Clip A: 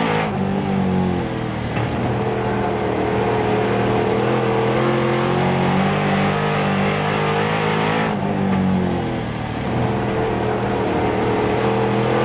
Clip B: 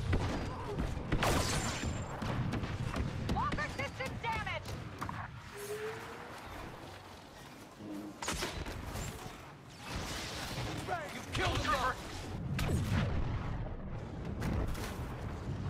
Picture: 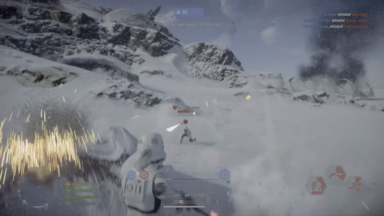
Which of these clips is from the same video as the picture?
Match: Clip B